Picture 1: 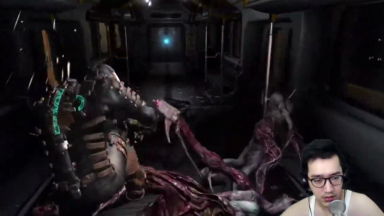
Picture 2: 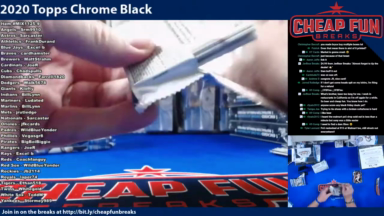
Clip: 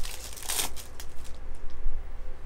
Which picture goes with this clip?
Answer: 2